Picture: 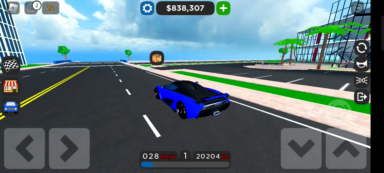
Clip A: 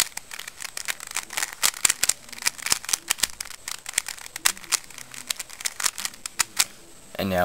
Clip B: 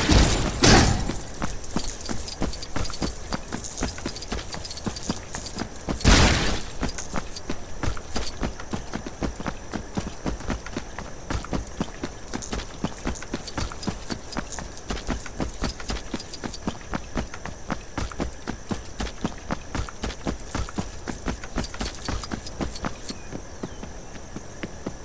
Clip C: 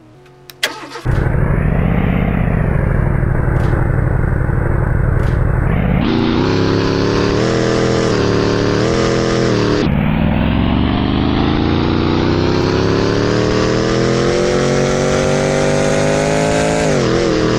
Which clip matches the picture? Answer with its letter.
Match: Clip C